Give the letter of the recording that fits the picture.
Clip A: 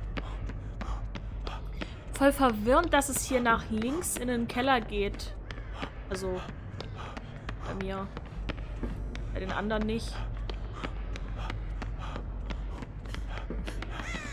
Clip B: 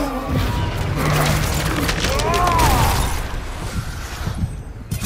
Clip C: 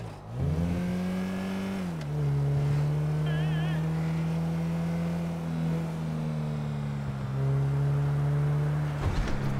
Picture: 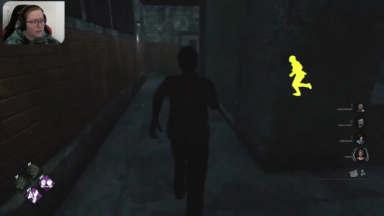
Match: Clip A